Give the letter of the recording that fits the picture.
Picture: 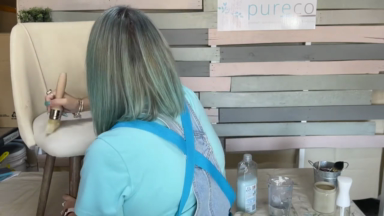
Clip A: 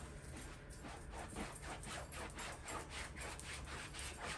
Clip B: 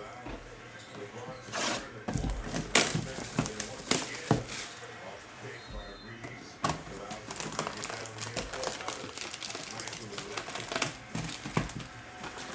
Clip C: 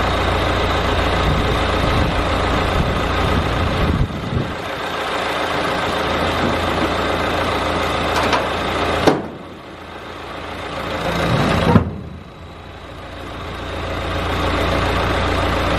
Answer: A